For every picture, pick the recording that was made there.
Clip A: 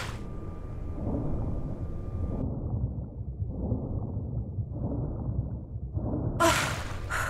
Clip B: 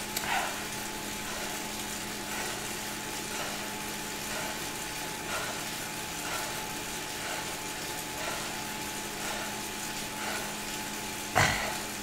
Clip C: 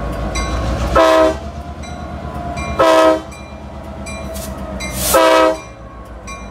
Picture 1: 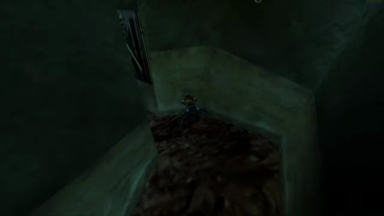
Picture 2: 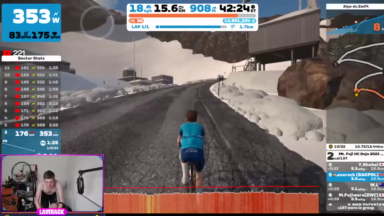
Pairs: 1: A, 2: B